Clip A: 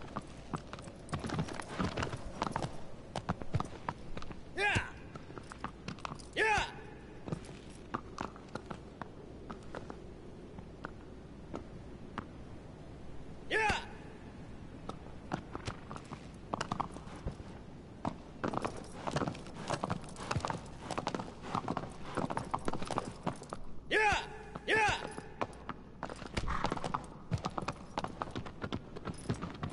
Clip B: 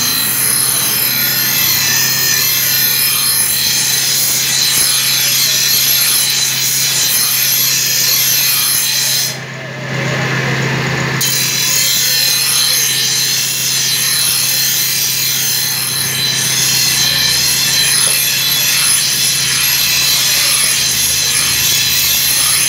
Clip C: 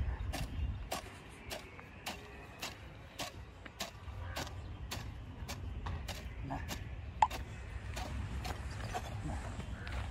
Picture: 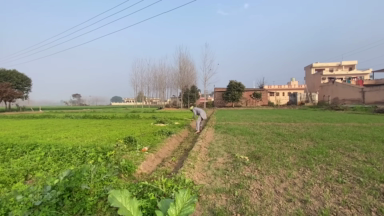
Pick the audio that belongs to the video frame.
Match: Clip C